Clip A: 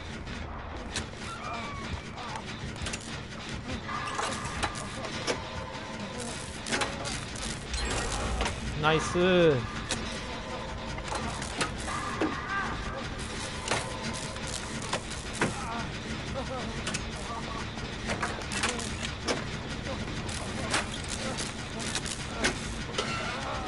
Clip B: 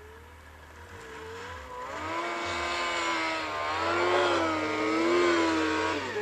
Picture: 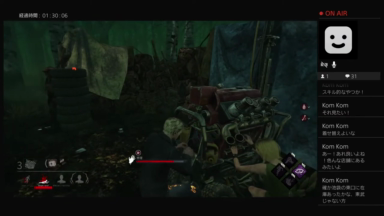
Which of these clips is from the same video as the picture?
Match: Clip A